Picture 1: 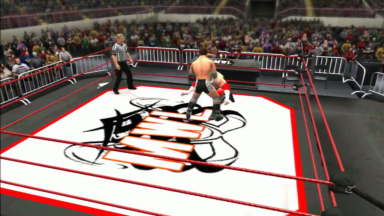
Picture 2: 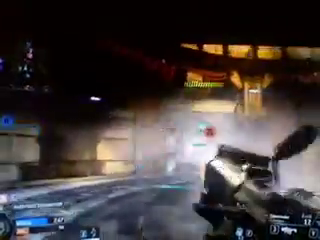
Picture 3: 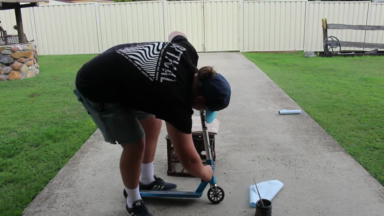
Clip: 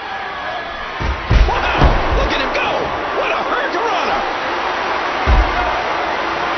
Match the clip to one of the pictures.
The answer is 1